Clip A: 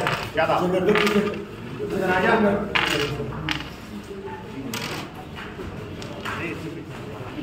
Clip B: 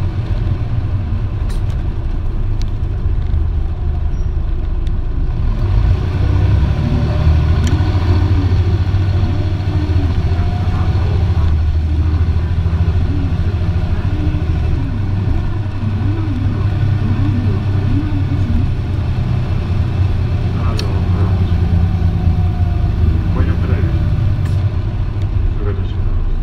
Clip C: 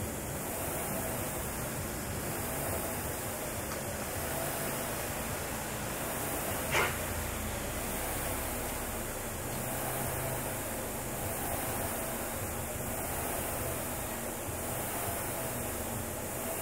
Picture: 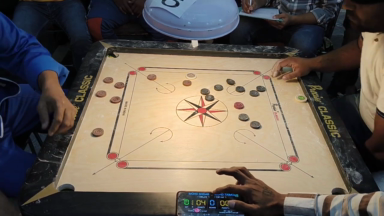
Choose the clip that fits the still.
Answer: A